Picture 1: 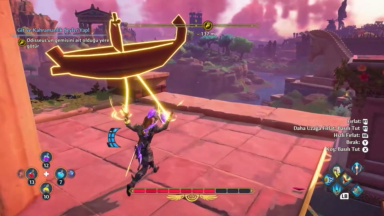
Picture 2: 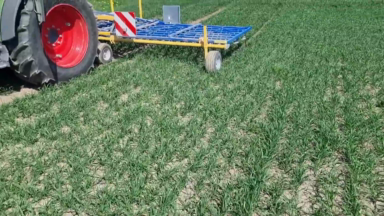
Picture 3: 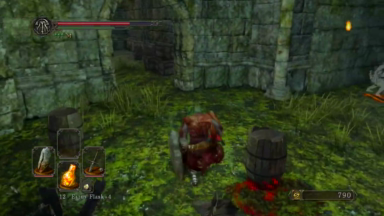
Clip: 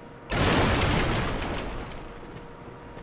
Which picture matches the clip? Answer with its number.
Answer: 3